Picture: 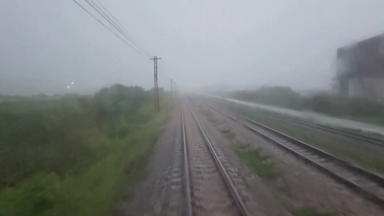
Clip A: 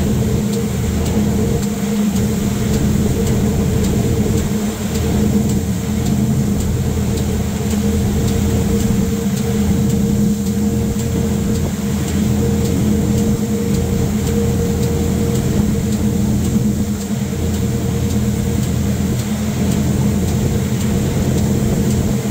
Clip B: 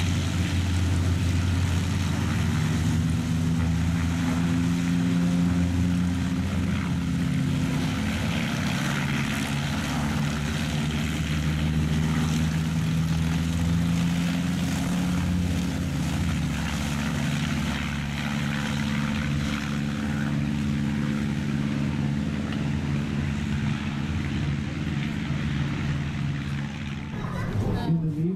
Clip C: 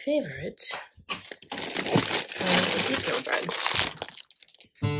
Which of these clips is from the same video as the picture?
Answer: A